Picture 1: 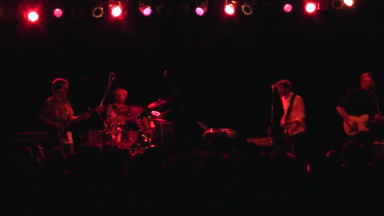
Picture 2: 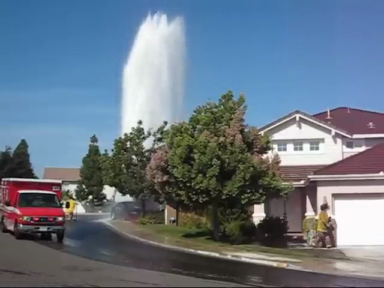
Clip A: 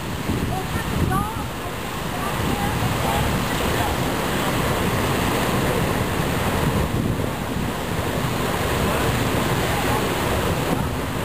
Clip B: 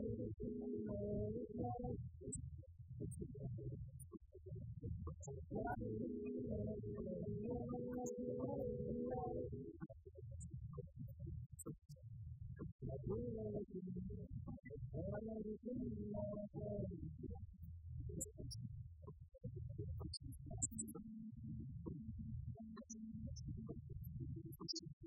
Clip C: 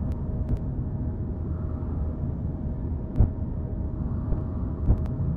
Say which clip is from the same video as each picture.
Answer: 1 B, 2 A